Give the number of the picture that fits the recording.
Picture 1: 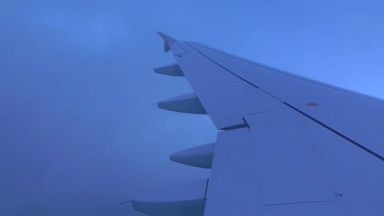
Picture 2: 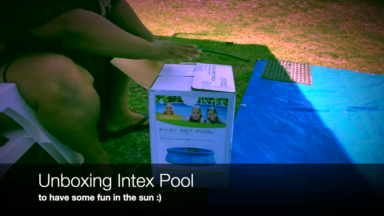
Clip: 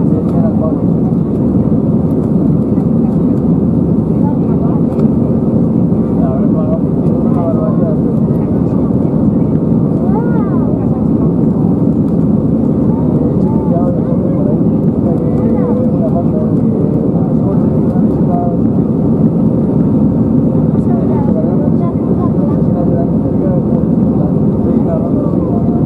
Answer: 1